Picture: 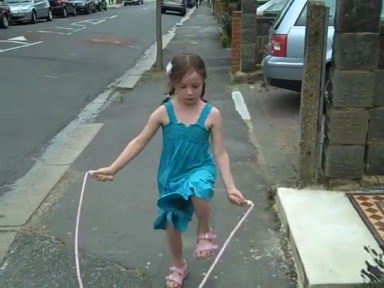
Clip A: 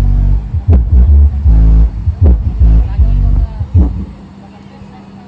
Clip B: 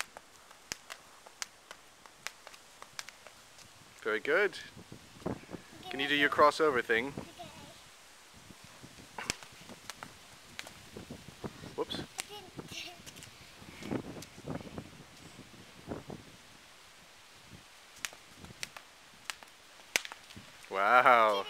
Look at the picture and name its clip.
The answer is B